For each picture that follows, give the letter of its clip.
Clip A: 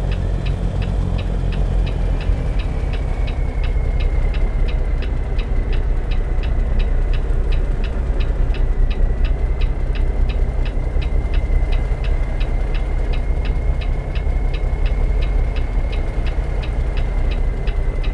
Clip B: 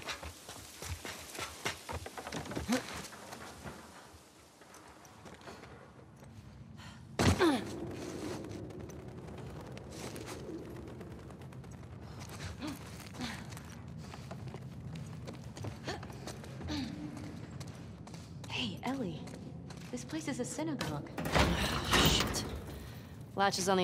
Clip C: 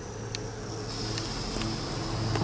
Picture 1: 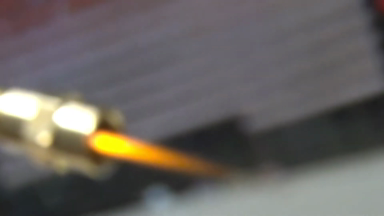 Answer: C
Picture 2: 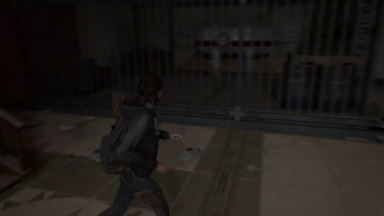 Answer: B